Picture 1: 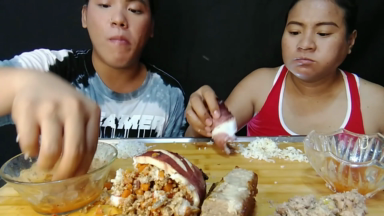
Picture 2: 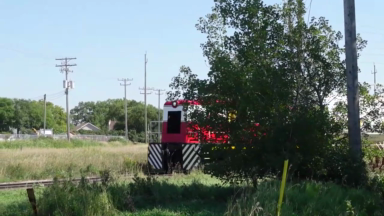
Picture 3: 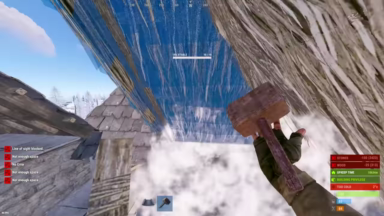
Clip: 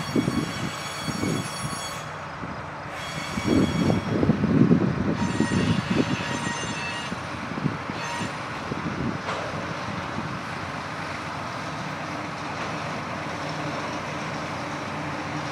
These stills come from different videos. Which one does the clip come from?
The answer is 2